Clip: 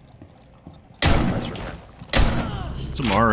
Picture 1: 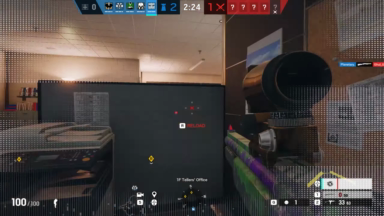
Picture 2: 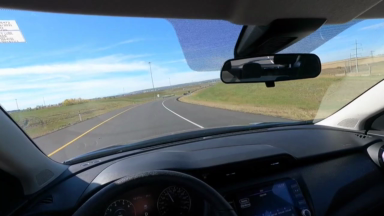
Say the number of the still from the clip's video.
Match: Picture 1